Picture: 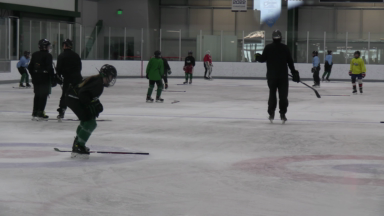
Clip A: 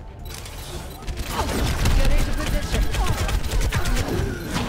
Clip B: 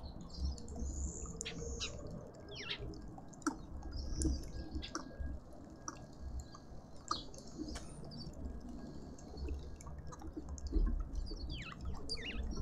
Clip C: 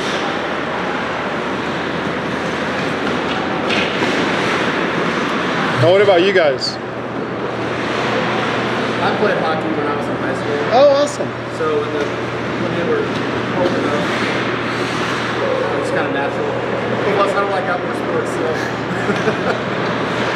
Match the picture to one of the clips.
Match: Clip C